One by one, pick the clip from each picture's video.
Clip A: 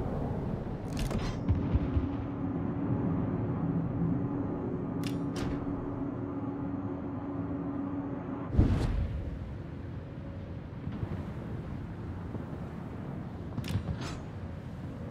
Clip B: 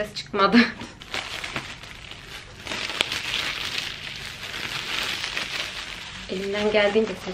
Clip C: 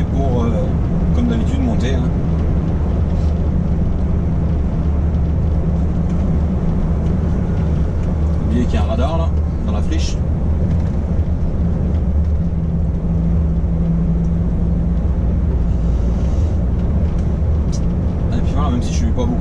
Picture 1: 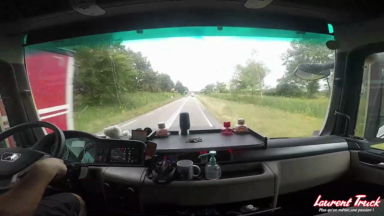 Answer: C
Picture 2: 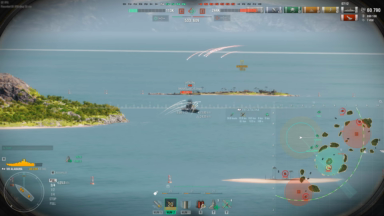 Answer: A